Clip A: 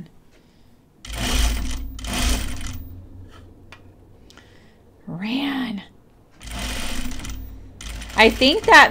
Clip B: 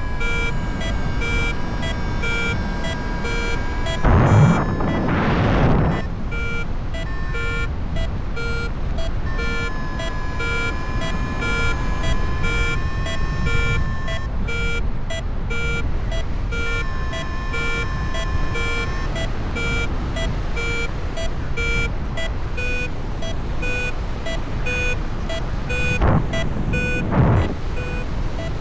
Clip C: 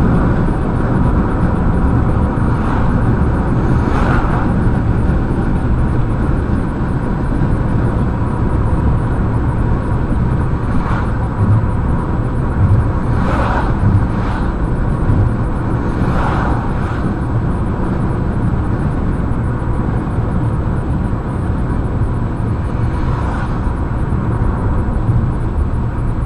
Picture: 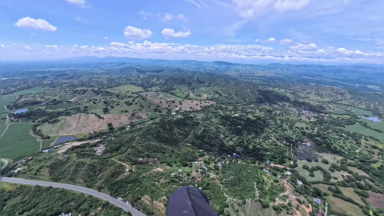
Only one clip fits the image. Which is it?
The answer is B